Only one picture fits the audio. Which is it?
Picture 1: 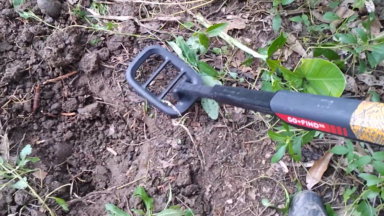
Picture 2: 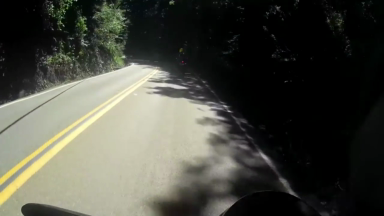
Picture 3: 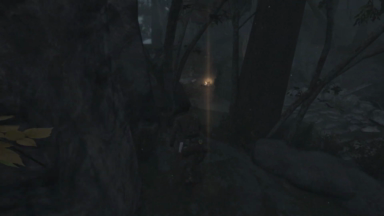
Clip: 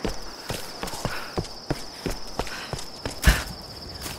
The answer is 3